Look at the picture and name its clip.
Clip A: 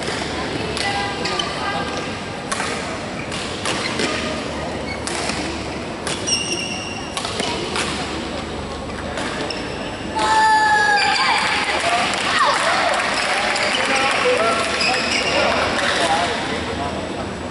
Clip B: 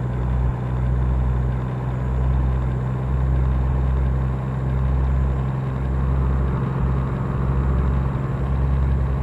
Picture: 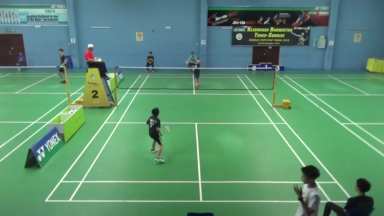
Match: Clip A